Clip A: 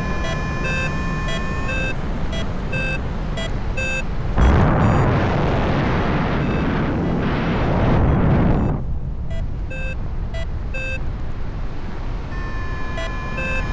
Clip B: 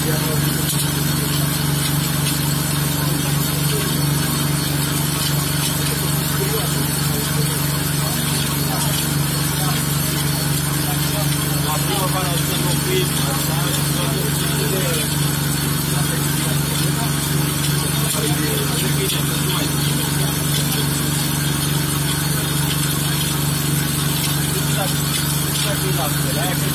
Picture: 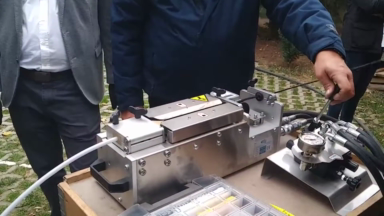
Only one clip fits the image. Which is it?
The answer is B